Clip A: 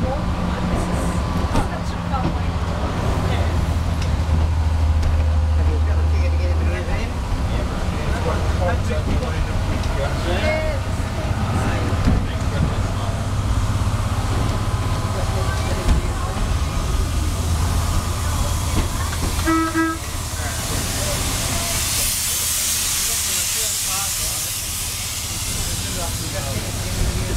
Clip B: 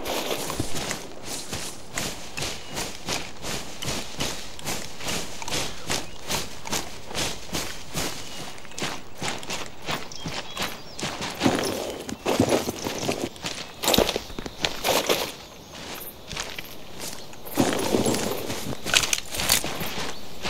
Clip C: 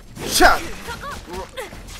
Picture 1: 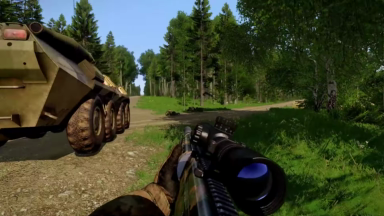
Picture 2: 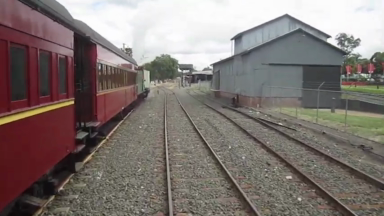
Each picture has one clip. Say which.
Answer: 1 B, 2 A